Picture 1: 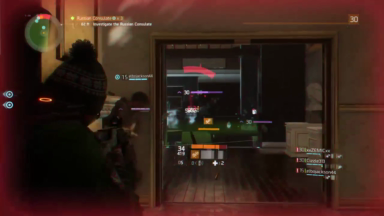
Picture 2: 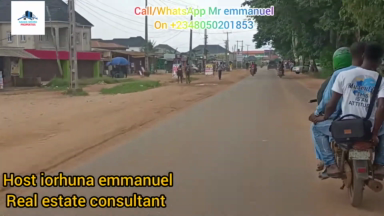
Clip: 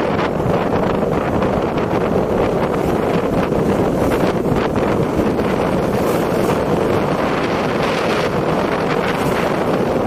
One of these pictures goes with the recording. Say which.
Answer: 2